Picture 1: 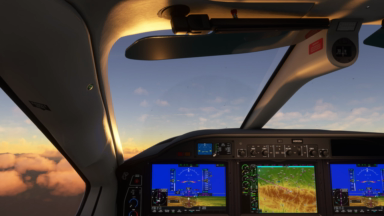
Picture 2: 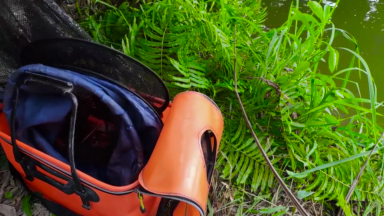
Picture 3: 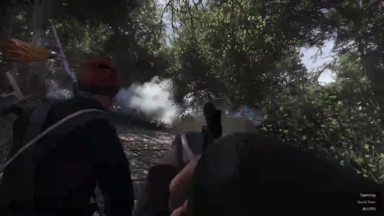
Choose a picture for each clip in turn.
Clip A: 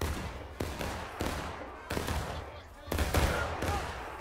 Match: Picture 3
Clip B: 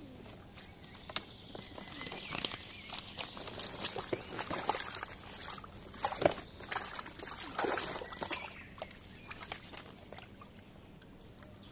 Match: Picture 2